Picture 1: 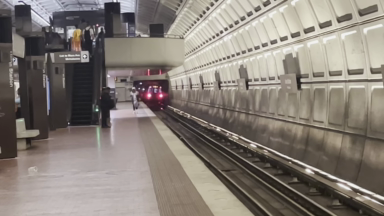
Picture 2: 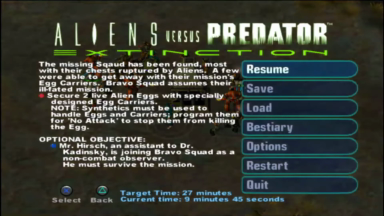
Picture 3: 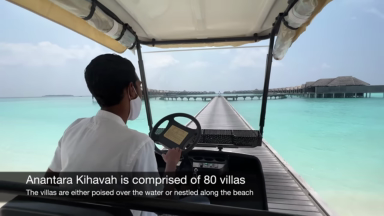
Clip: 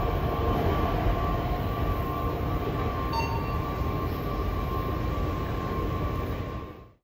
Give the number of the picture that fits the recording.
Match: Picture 1